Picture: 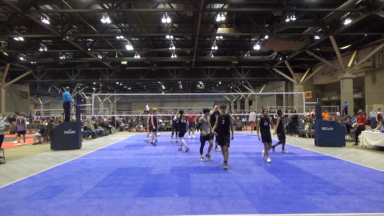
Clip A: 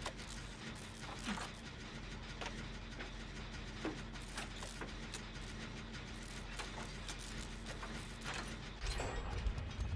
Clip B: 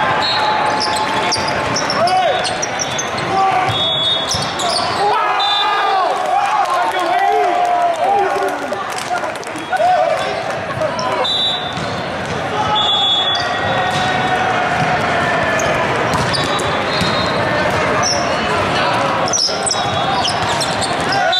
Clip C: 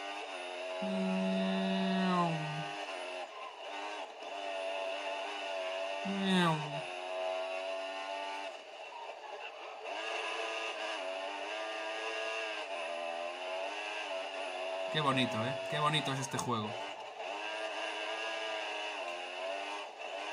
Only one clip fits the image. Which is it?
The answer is B